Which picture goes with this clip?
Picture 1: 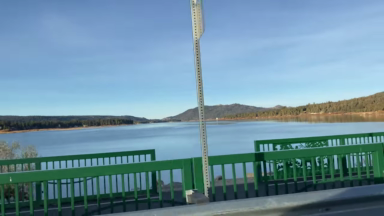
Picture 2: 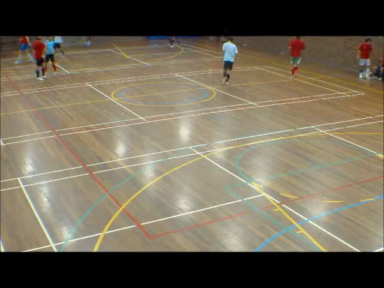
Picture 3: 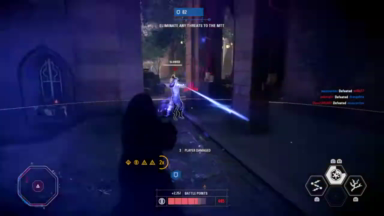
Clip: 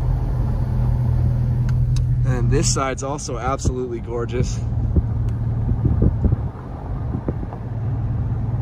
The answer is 1